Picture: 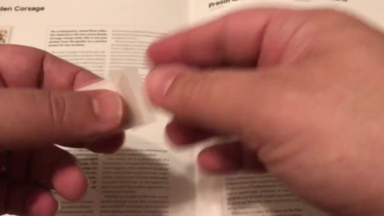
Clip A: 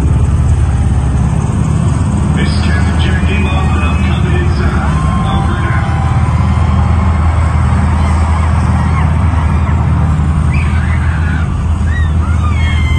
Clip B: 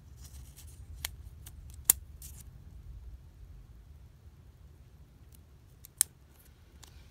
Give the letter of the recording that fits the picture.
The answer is B